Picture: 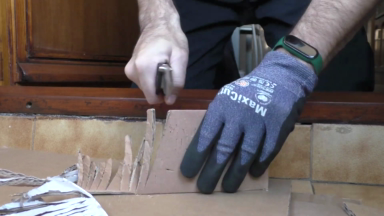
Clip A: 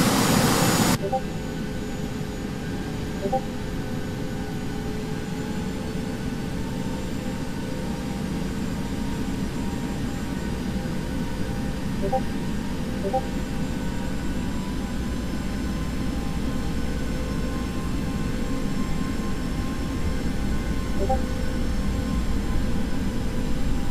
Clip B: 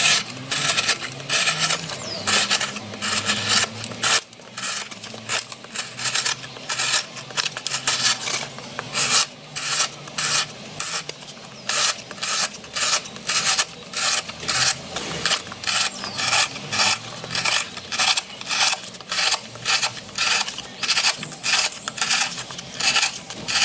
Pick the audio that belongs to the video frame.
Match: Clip B